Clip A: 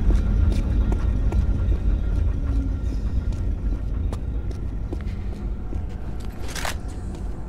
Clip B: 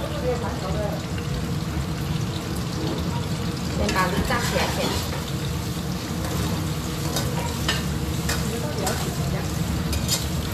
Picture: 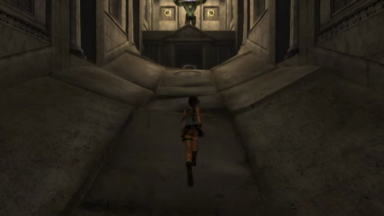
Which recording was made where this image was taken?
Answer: A